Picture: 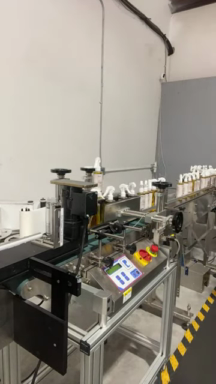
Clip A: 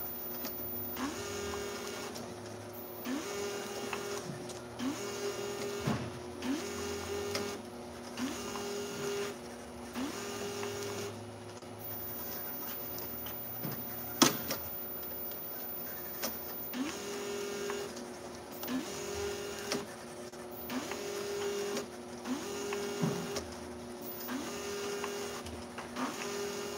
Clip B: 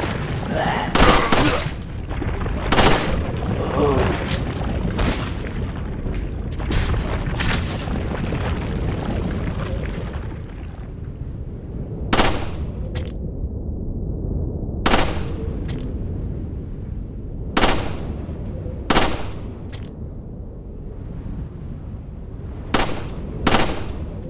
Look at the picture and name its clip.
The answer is A